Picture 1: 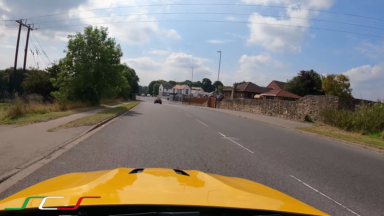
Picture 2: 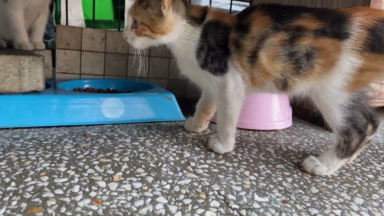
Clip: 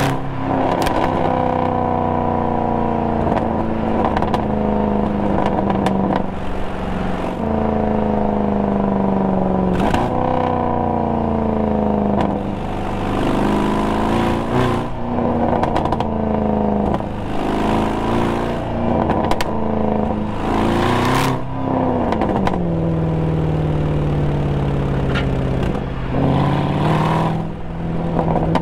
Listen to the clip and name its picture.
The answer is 1